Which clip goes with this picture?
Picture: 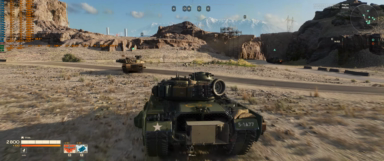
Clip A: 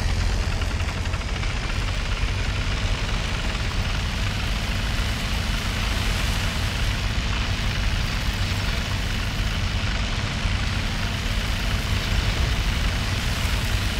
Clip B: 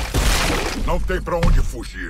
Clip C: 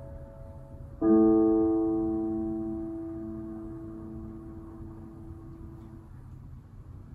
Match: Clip A